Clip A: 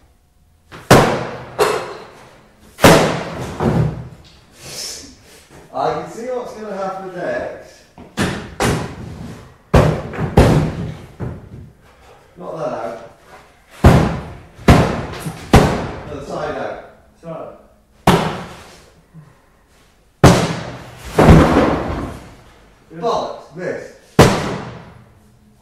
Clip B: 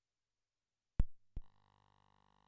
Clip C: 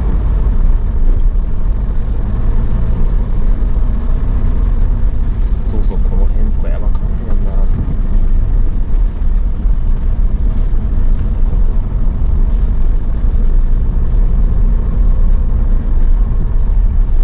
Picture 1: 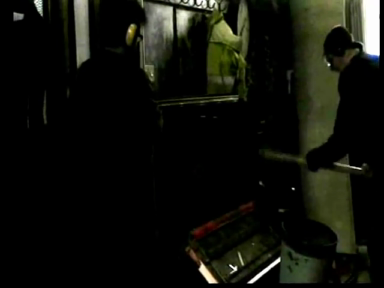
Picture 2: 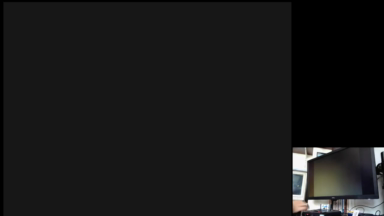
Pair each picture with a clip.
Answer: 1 A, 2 B